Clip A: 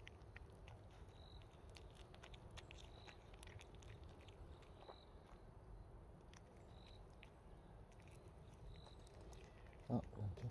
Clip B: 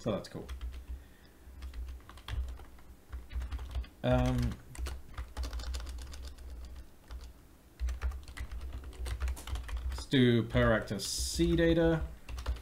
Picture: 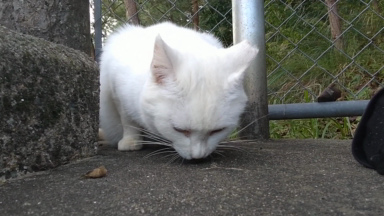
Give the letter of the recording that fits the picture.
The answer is A